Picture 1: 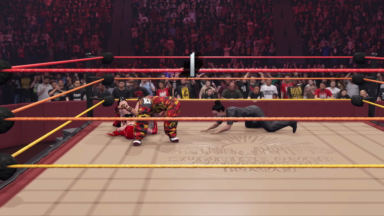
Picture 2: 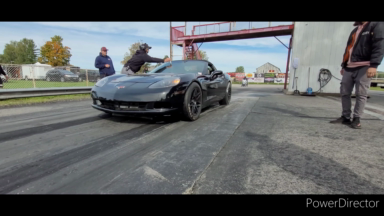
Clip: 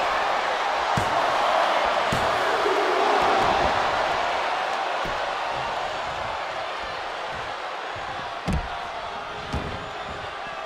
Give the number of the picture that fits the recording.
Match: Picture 1